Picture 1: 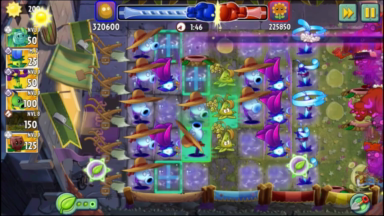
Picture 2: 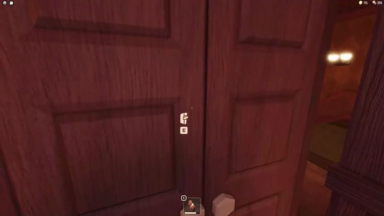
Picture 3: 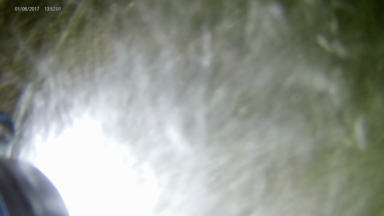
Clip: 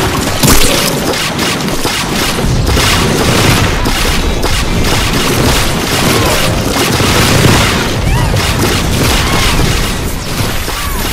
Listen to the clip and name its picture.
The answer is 1